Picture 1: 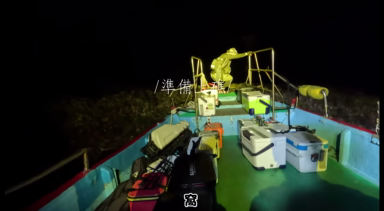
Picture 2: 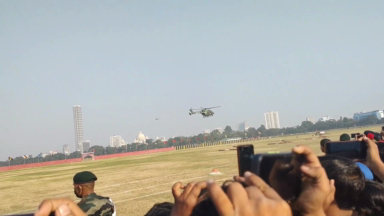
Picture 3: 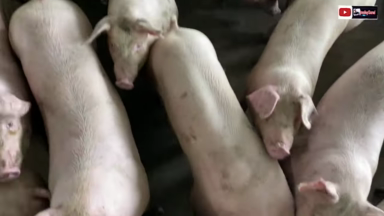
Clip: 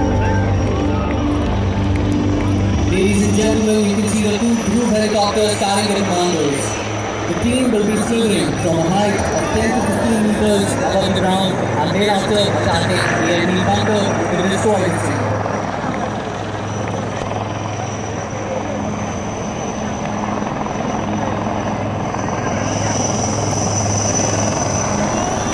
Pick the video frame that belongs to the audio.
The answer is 2